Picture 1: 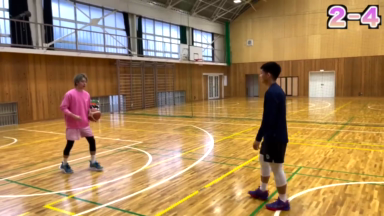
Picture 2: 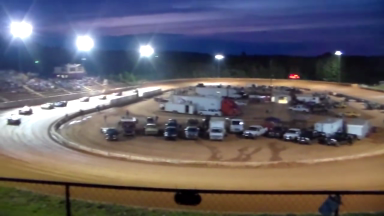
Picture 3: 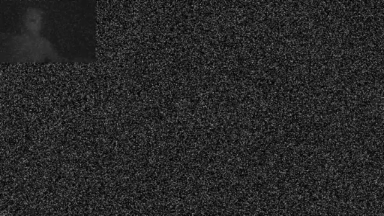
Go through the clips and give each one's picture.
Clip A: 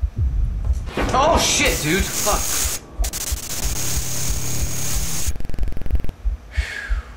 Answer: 3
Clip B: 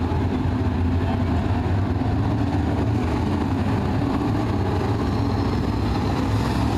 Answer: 2